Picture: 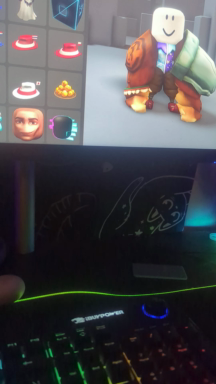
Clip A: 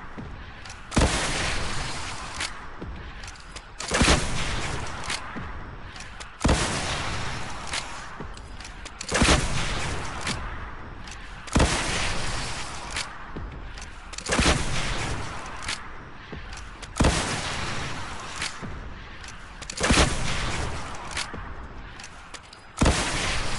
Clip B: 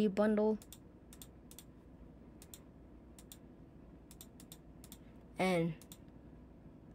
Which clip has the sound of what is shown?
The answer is B